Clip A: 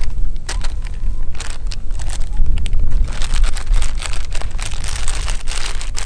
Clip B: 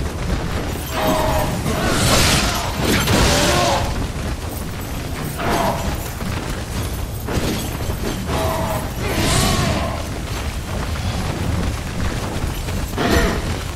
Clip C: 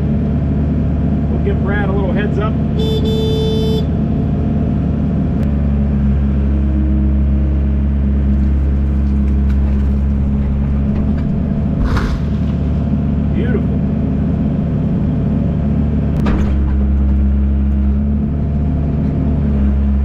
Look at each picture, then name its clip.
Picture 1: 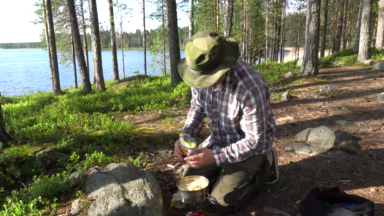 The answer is A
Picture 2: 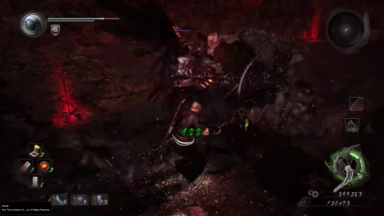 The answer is B